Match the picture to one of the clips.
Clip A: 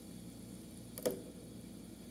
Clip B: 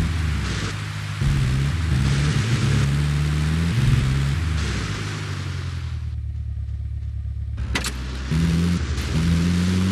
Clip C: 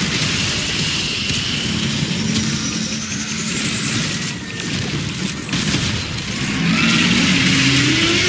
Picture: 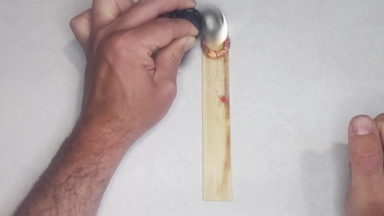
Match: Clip A